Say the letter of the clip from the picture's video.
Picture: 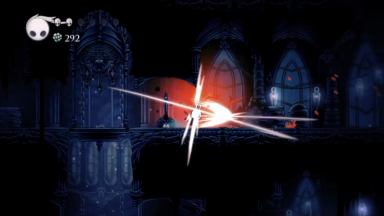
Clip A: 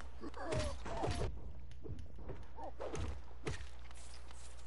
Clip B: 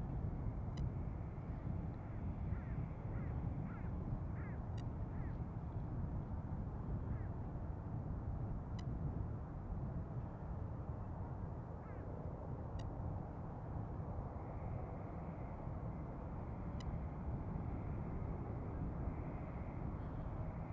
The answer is A